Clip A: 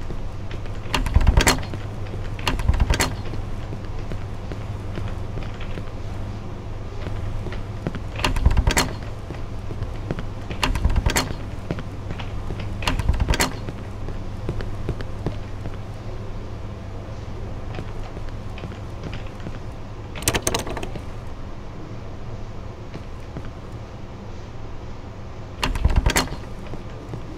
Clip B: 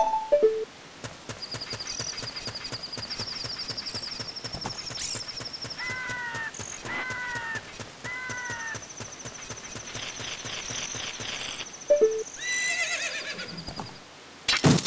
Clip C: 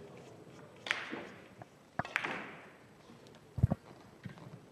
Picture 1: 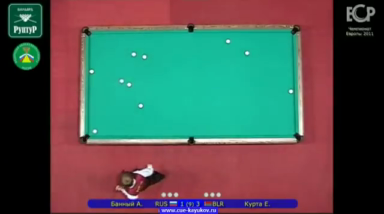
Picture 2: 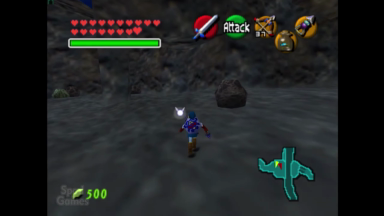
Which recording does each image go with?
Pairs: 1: C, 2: B